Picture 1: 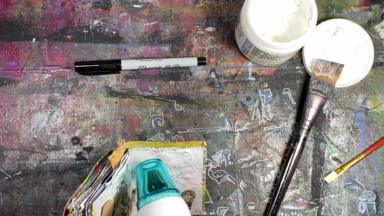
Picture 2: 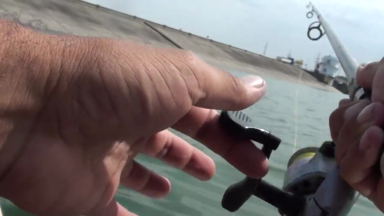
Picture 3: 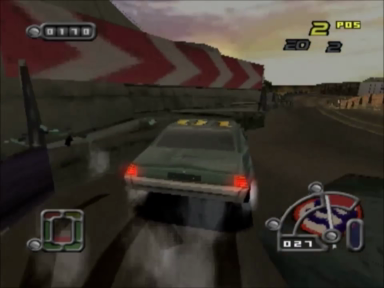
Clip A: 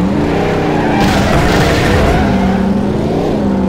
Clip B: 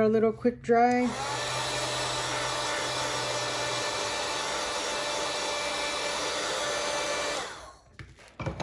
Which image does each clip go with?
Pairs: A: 3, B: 1